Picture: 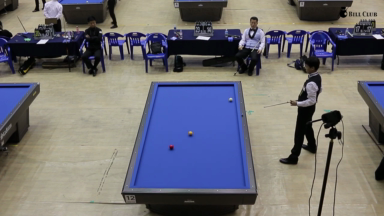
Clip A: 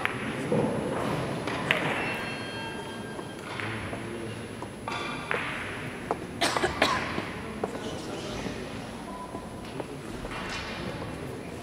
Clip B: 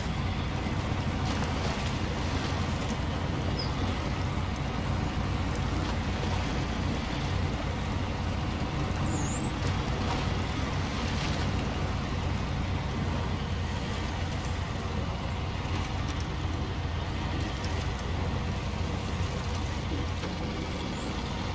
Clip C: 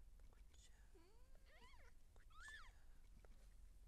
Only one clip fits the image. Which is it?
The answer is A